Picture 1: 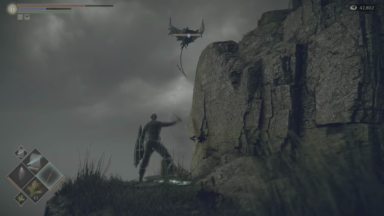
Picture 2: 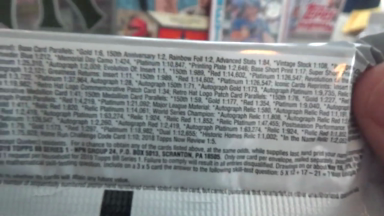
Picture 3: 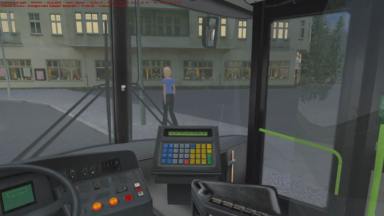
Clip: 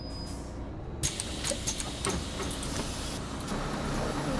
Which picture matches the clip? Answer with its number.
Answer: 3